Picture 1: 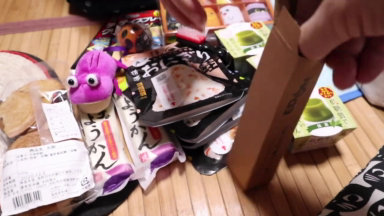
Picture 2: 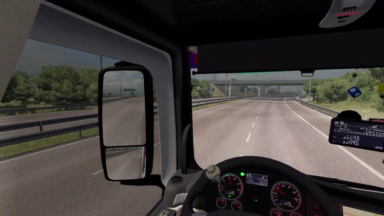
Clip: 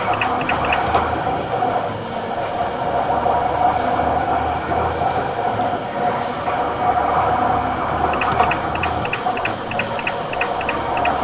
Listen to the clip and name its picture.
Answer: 2